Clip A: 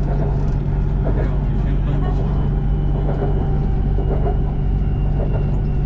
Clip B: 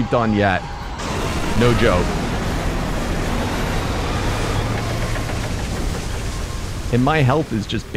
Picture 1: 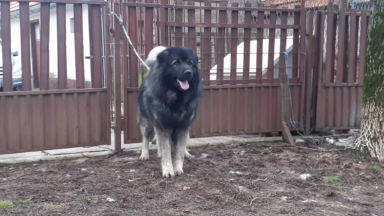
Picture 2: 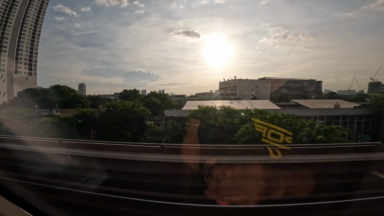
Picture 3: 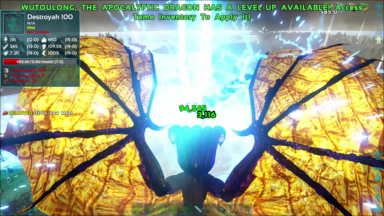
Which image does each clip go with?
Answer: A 2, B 3